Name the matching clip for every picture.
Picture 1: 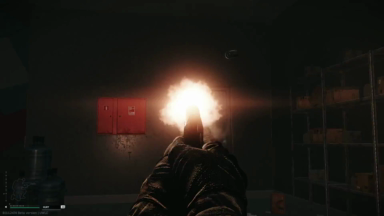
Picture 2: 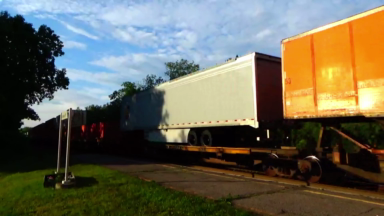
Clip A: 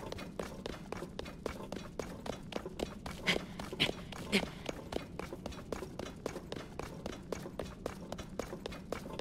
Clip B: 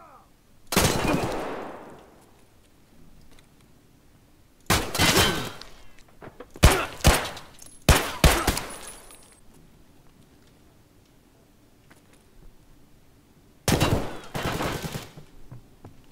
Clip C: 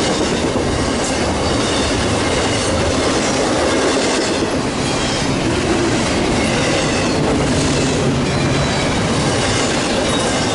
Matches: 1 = B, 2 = C